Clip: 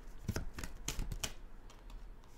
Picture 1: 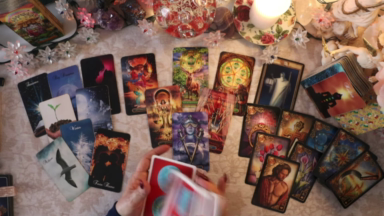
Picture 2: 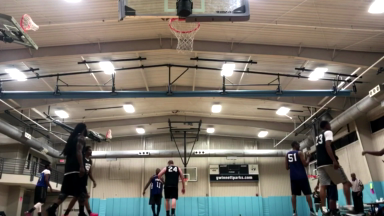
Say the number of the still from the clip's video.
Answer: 1